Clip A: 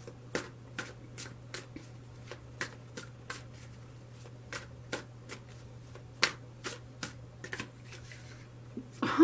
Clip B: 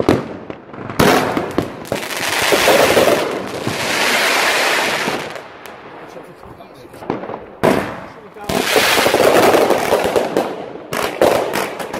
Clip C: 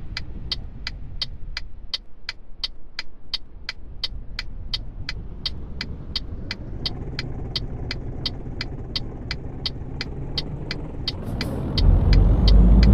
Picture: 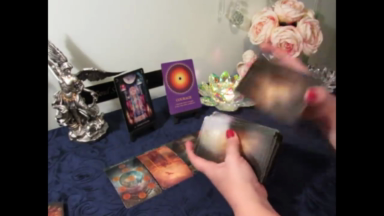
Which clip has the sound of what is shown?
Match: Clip A